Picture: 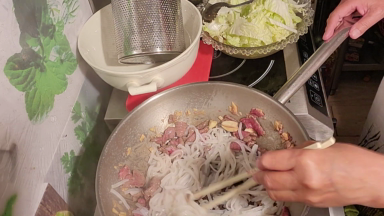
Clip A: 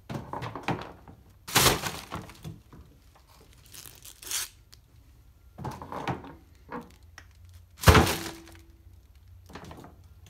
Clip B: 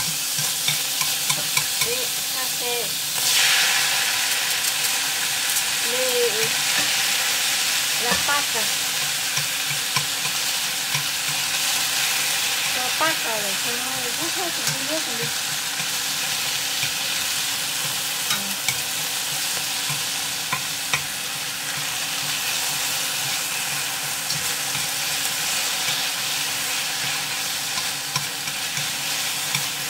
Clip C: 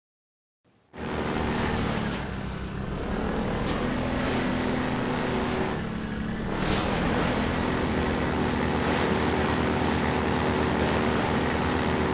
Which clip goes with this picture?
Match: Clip B